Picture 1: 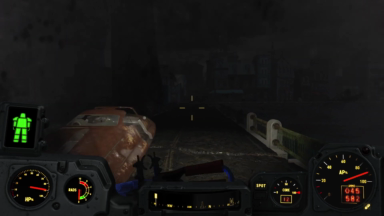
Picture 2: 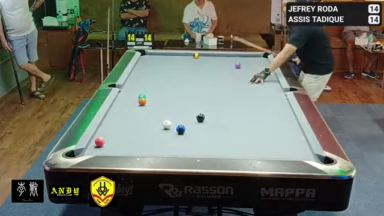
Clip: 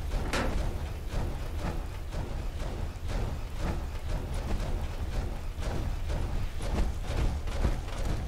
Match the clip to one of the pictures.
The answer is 1